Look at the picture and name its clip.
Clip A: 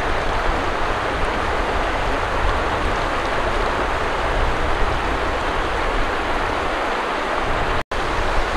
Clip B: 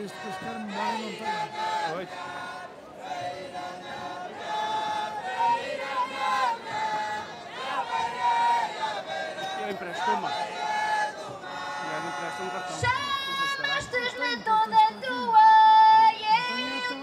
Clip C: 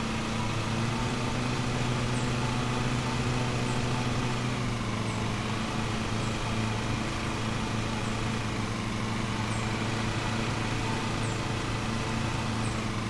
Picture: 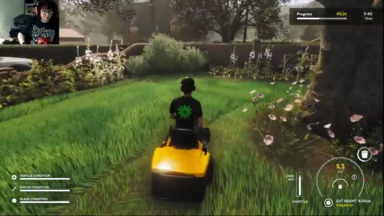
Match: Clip C